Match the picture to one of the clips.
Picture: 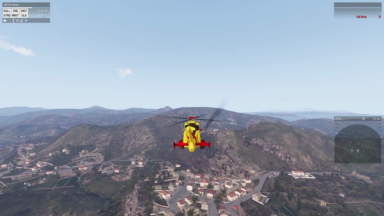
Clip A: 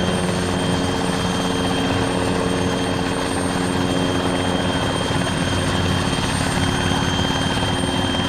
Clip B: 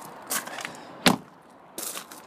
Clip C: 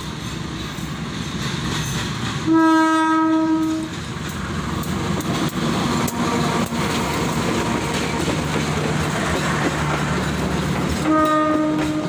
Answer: A